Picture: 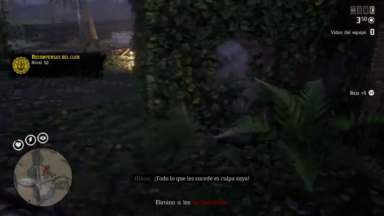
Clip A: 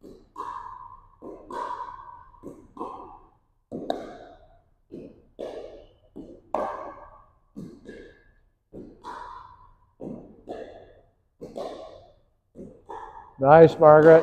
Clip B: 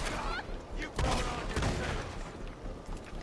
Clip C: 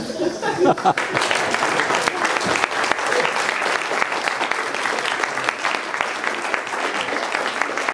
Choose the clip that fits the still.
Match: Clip B